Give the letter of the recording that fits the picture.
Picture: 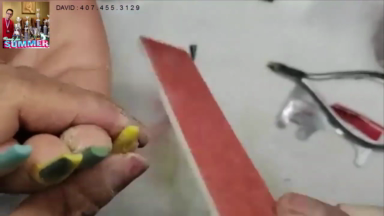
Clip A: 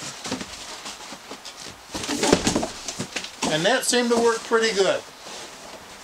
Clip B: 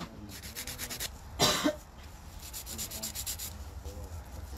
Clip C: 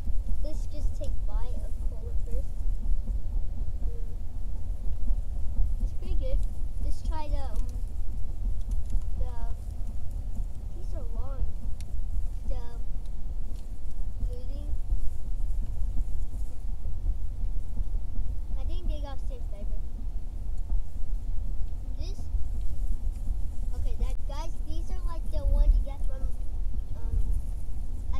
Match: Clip B